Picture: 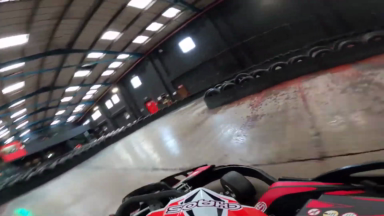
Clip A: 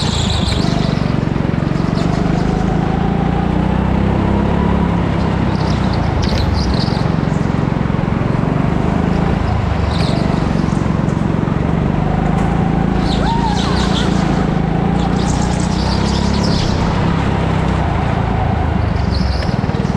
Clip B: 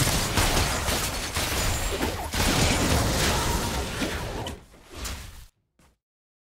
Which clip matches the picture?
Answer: A